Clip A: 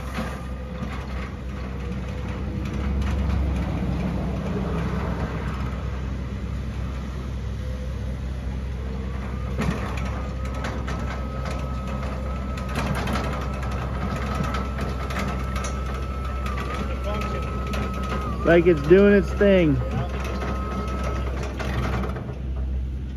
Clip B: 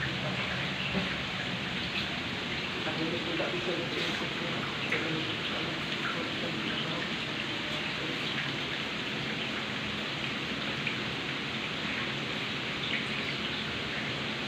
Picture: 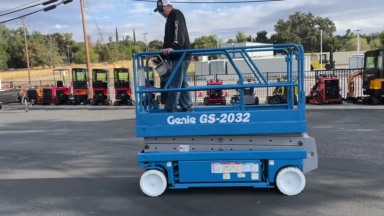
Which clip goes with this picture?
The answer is A